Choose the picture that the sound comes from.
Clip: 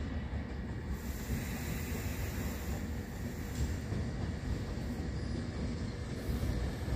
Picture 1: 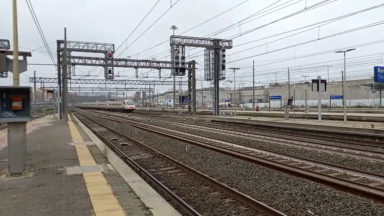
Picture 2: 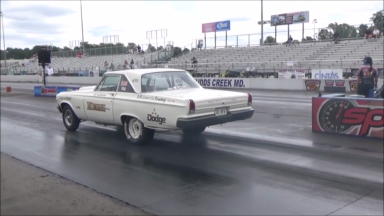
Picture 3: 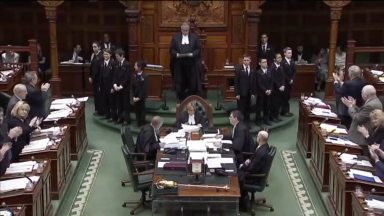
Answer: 1